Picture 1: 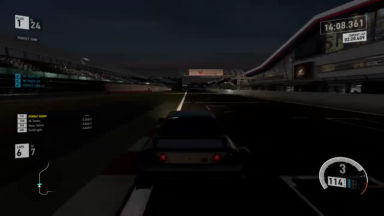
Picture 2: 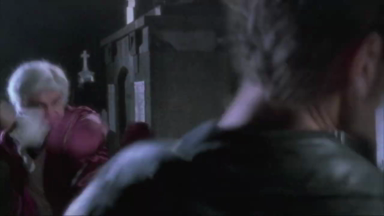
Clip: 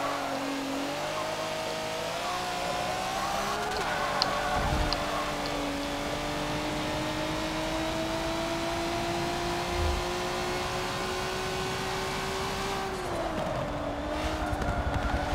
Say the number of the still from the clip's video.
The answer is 1